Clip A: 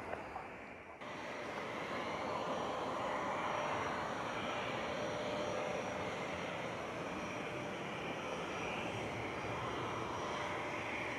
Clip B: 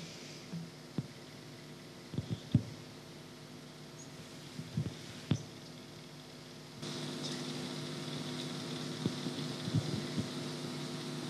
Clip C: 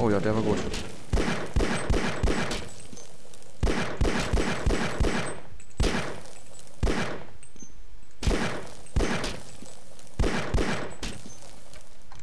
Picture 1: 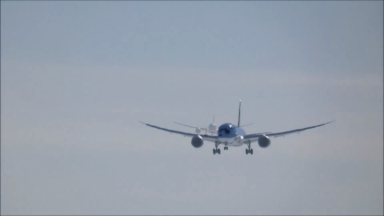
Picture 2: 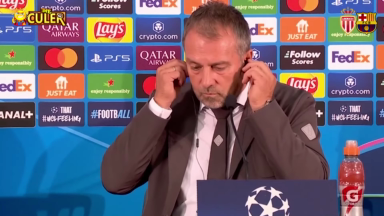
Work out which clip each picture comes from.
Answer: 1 A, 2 B